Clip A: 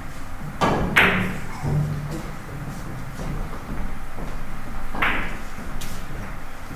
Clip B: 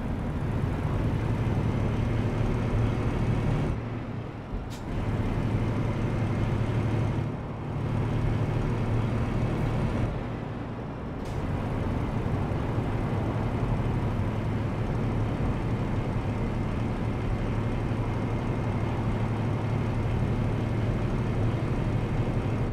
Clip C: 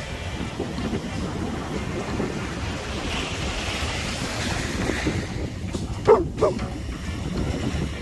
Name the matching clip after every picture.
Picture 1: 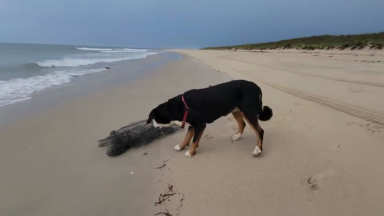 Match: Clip C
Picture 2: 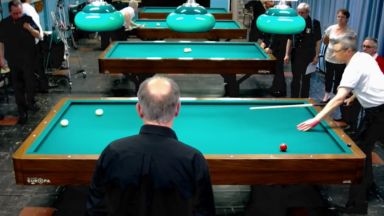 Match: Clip A